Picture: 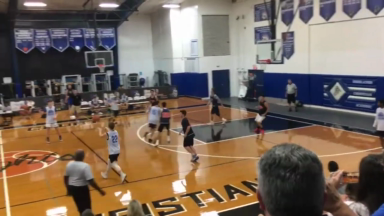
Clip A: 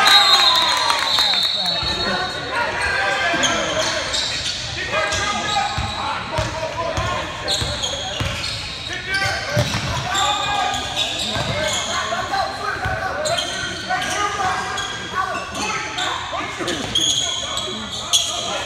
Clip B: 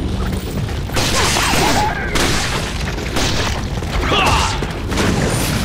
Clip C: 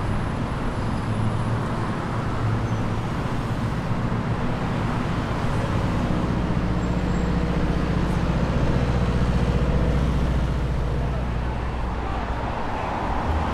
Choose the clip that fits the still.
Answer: A